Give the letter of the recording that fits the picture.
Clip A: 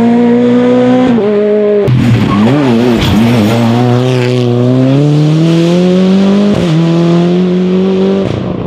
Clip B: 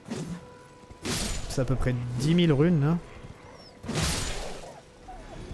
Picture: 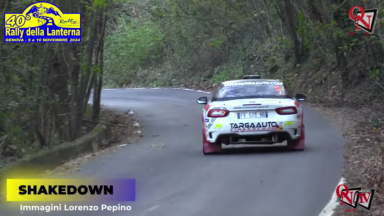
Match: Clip A